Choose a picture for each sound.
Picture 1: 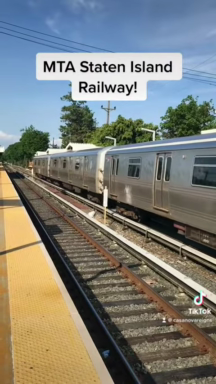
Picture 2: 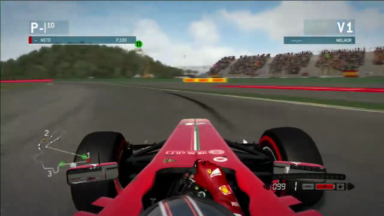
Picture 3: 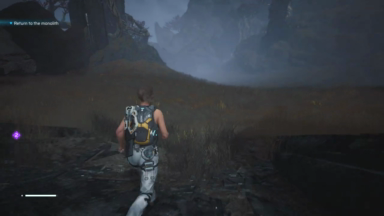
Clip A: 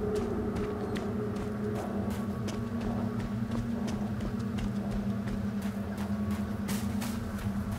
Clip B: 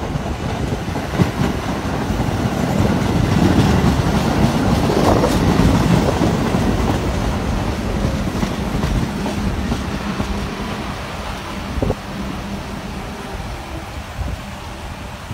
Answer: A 3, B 1